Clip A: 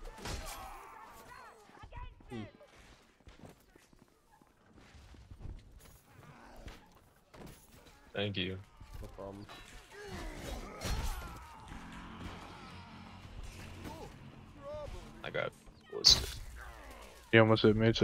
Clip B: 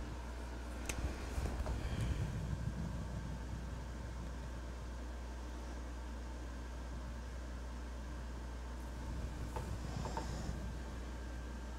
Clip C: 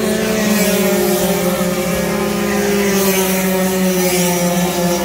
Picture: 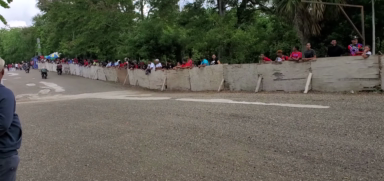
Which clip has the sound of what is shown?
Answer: C